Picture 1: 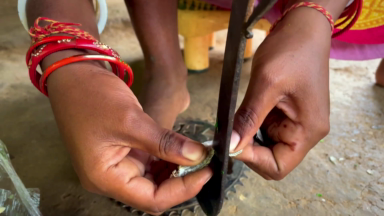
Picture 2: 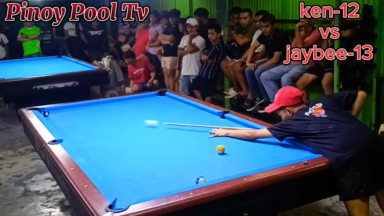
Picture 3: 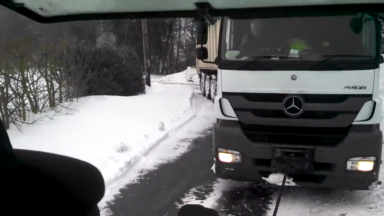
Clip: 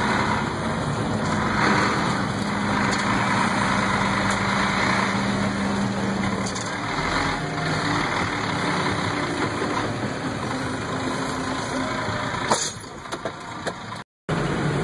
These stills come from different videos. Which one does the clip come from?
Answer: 3